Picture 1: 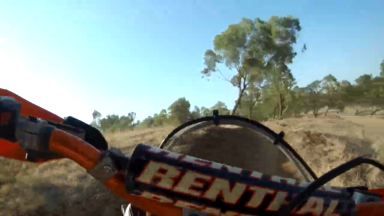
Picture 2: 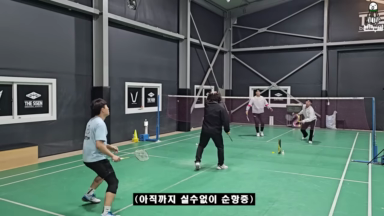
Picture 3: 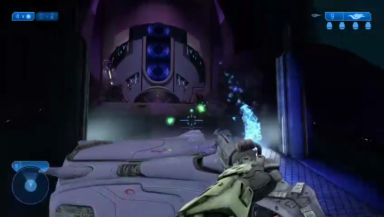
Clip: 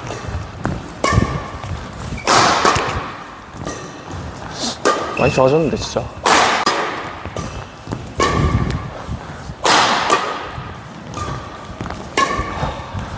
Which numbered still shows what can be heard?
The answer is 2